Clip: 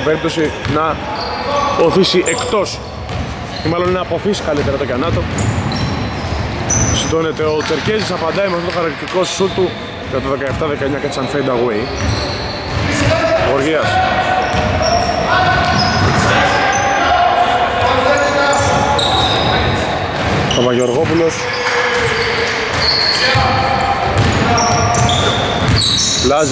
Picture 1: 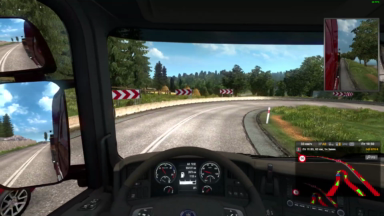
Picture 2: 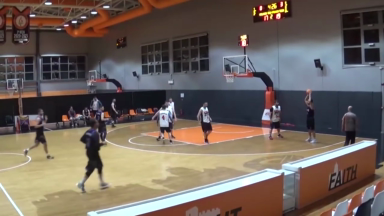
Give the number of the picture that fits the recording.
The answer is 2